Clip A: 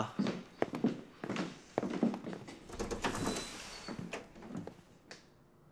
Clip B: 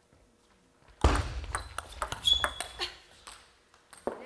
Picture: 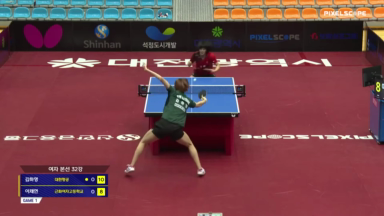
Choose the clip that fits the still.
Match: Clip B